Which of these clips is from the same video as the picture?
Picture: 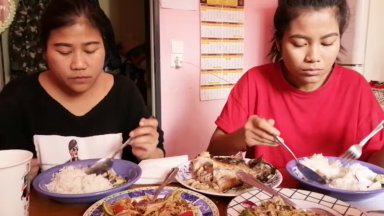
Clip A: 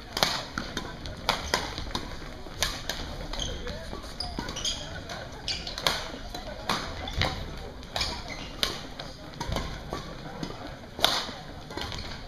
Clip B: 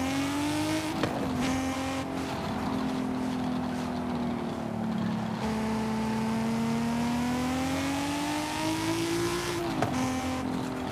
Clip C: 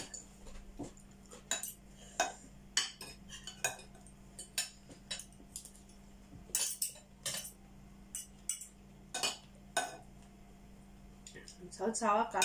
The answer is C